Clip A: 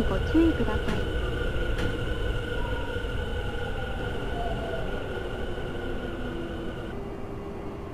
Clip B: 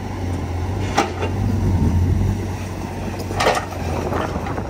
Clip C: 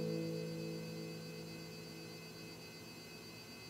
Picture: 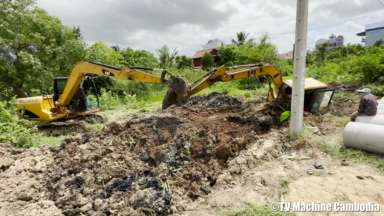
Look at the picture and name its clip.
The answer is B